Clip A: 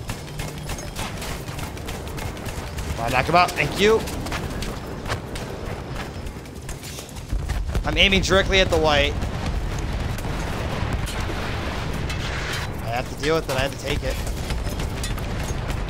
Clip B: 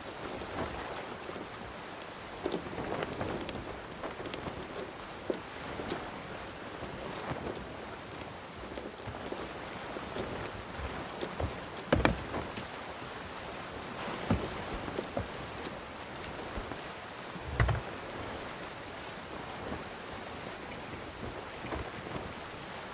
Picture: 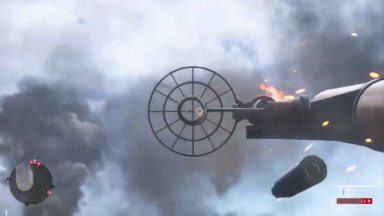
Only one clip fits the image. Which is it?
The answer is A